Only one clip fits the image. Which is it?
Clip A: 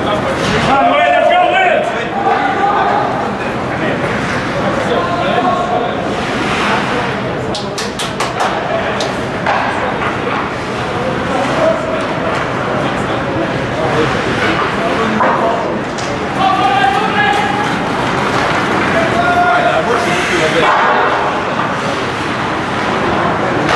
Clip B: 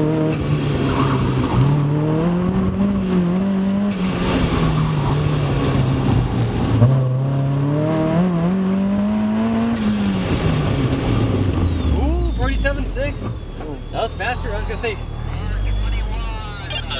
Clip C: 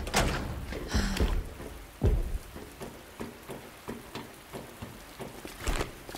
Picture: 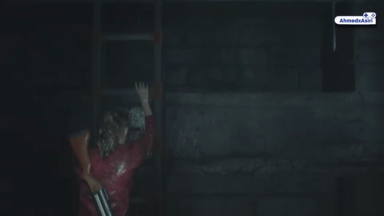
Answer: C